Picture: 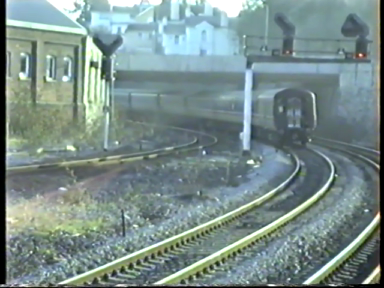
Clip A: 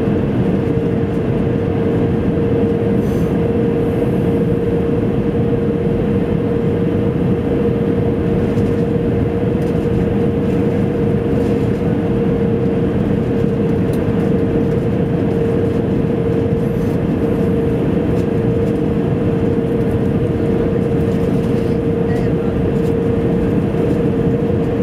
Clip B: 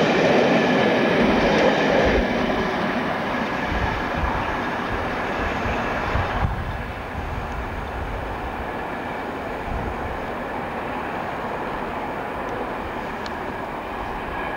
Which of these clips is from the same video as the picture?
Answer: B